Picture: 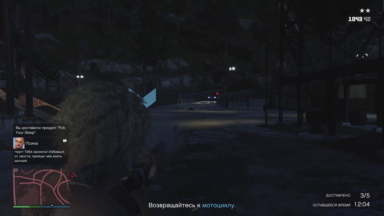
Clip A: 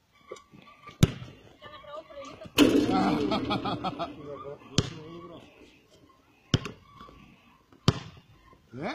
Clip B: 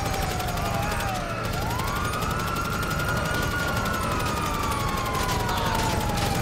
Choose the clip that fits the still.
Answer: B